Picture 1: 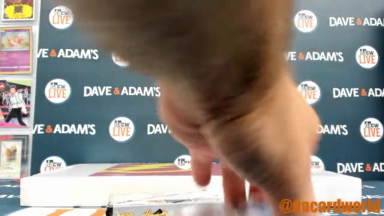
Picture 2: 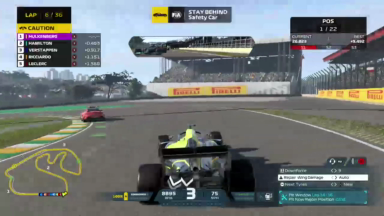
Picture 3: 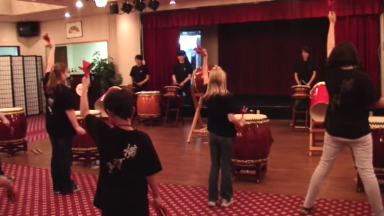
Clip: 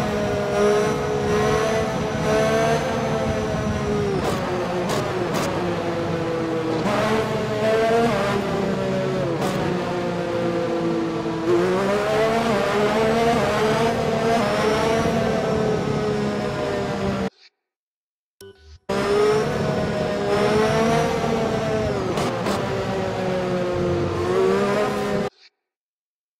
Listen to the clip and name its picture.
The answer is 2